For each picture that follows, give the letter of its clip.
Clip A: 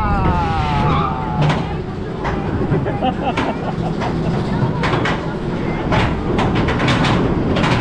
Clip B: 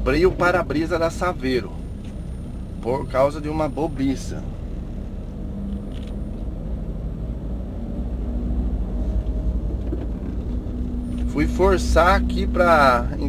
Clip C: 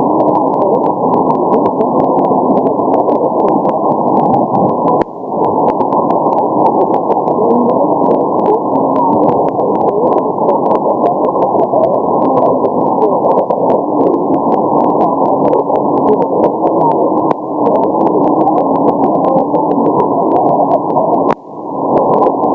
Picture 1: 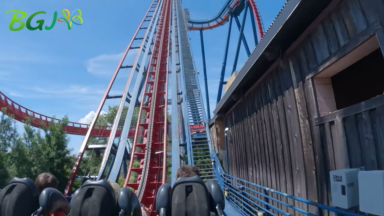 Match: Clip A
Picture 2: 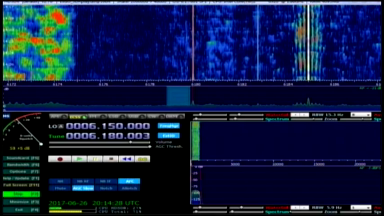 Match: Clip C